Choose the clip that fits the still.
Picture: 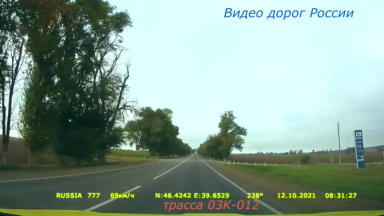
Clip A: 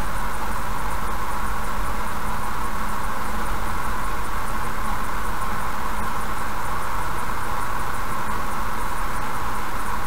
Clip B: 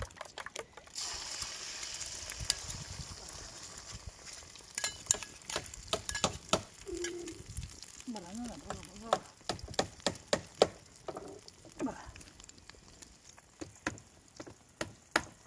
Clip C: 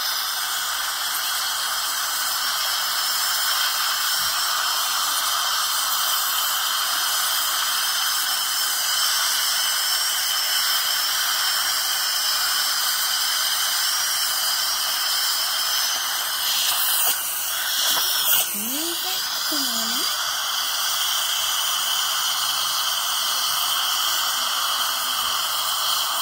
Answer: A